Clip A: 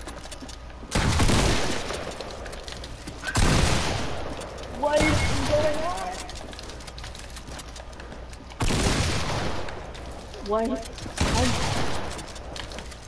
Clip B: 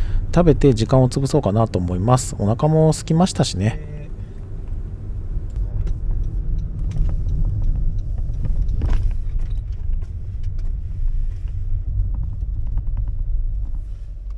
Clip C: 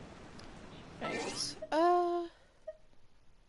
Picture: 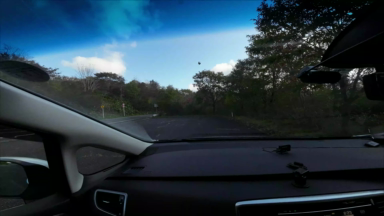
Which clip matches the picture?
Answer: B